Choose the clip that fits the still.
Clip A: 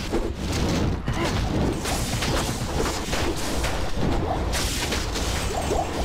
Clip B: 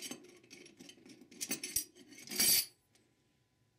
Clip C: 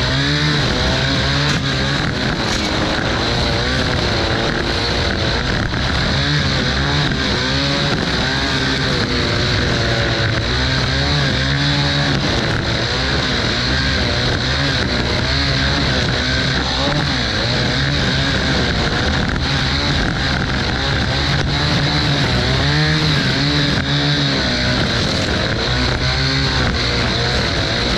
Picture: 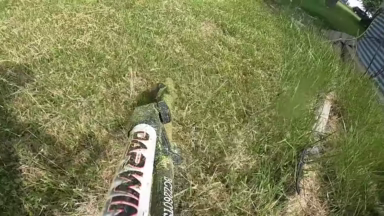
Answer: C